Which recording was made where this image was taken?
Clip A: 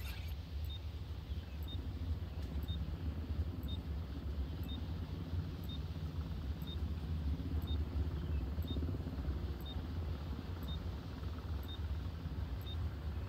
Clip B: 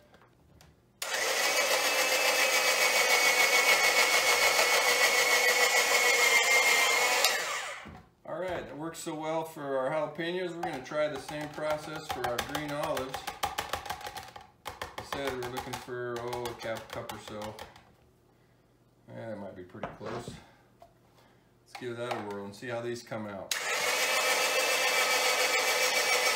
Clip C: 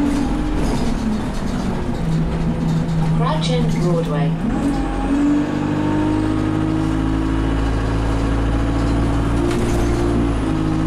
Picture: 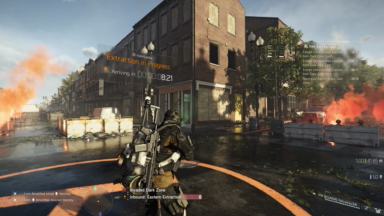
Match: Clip A